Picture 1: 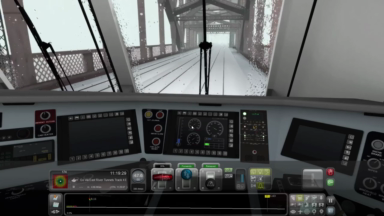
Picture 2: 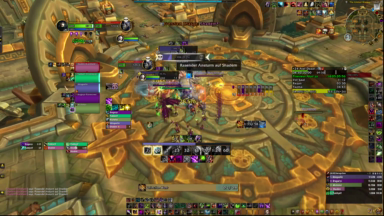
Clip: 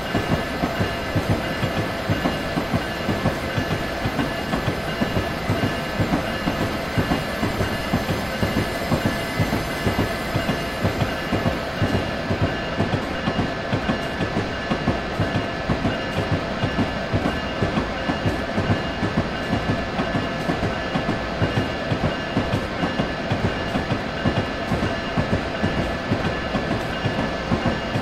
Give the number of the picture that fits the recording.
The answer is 1